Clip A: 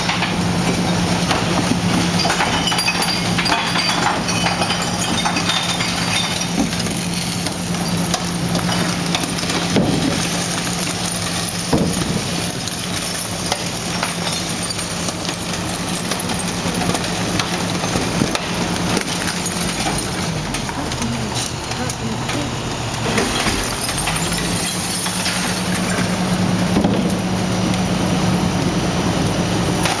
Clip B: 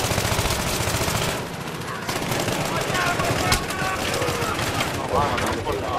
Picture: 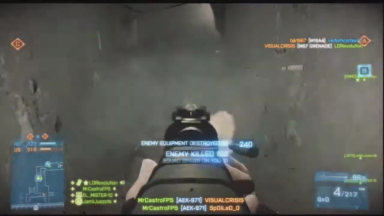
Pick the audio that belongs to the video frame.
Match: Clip B